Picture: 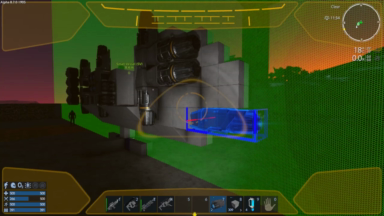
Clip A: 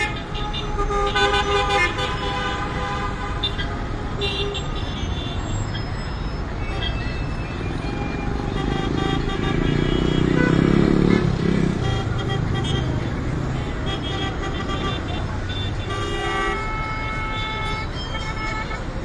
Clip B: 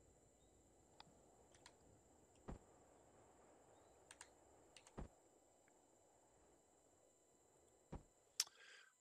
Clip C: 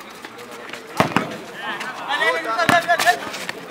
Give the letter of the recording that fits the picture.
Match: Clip B